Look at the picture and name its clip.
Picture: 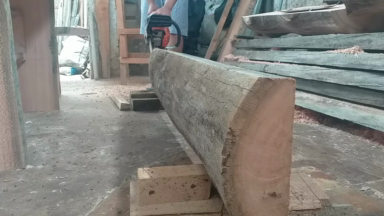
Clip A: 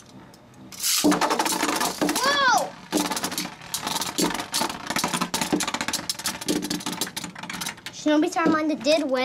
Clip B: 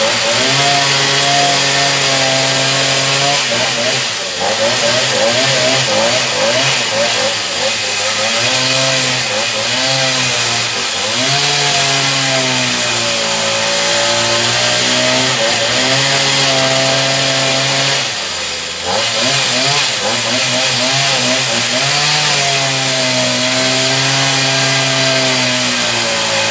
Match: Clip B